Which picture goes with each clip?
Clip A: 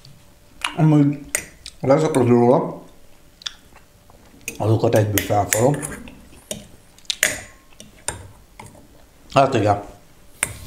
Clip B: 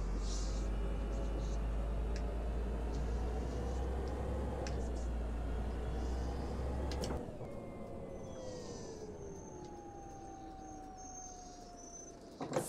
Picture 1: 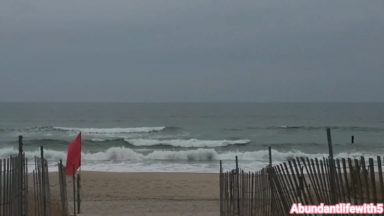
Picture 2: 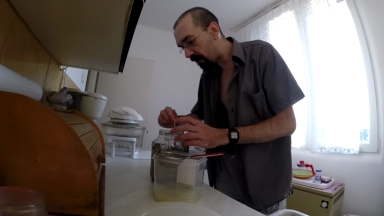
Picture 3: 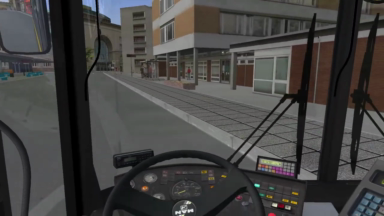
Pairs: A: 2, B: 3